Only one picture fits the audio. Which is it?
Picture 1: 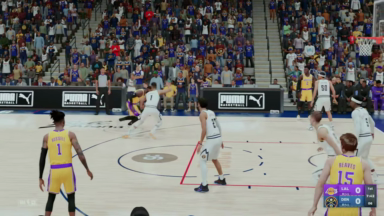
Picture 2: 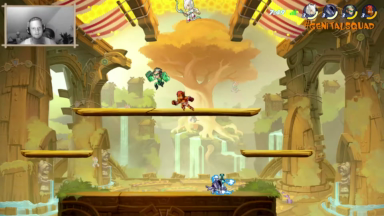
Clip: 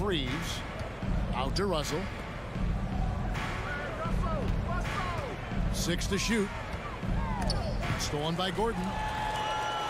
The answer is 1